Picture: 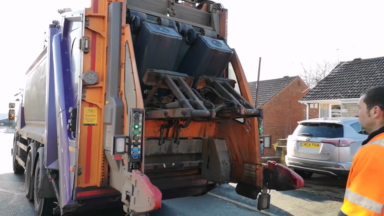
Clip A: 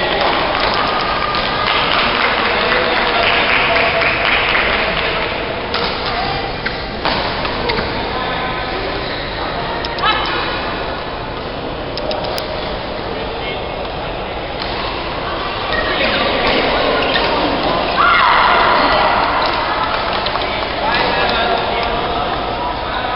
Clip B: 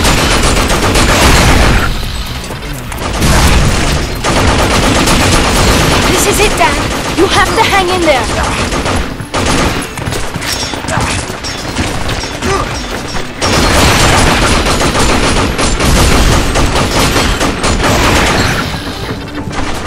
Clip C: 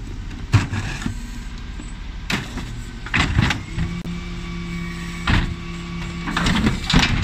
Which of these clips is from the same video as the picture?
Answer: C